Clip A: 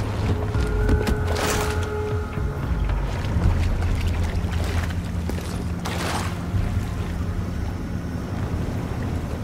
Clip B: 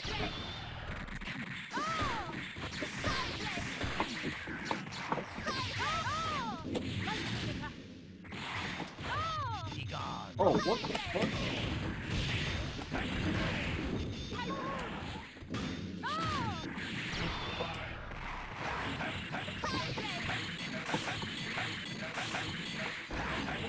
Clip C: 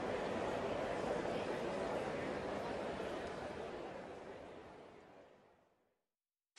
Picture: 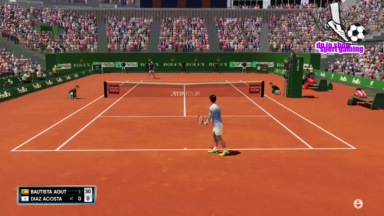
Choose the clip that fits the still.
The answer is C